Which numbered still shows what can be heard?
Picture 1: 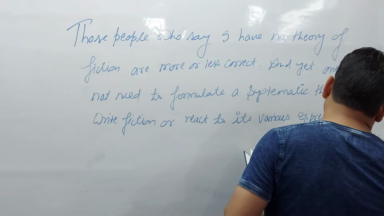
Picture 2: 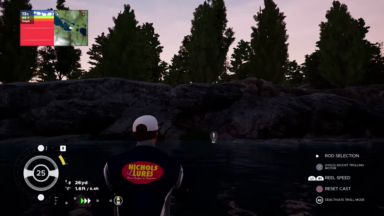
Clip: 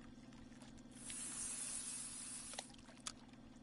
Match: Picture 2